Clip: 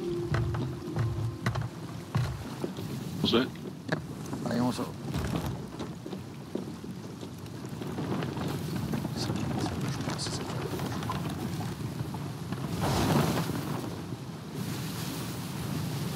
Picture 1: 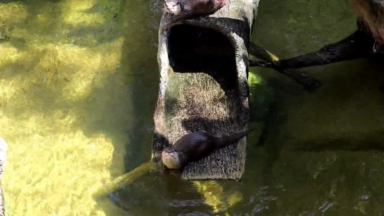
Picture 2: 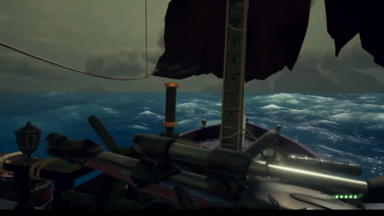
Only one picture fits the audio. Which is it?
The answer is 2